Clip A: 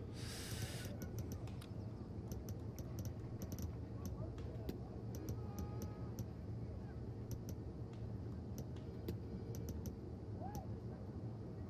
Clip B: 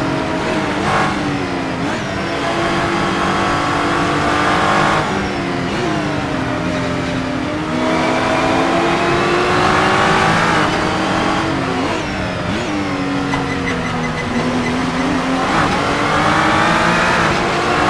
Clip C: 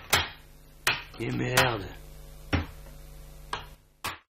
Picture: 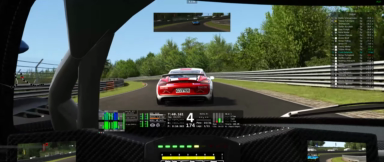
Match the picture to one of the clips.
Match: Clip B